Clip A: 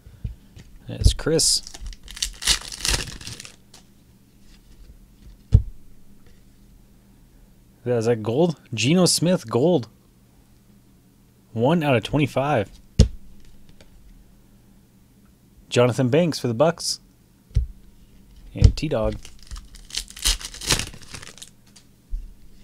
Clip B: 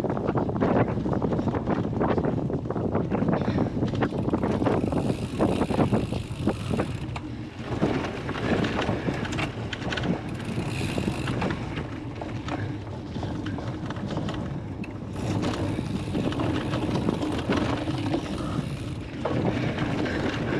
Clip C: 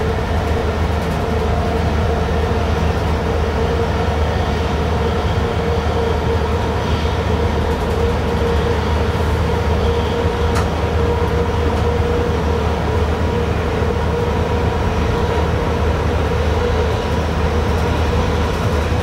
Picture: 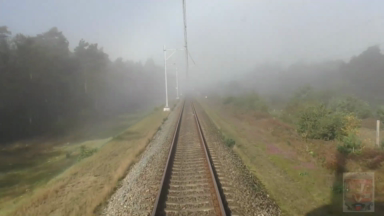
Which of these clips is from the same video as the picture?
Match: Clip C